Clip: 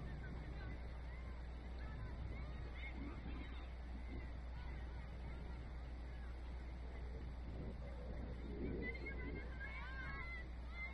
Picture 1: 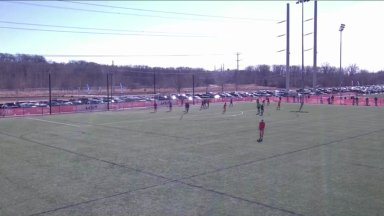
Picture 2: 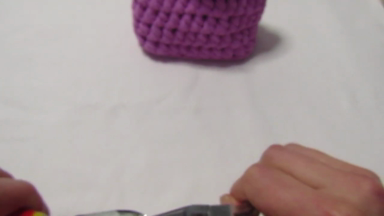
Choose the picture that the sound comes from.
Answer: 1